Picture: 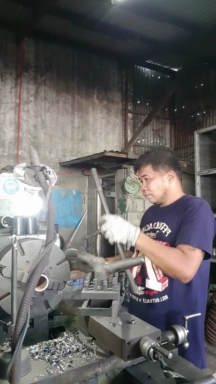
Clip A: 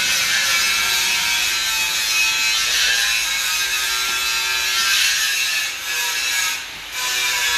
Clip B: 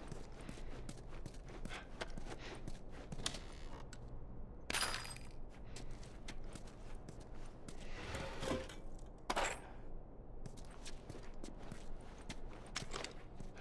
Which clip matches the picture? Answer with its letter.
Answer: A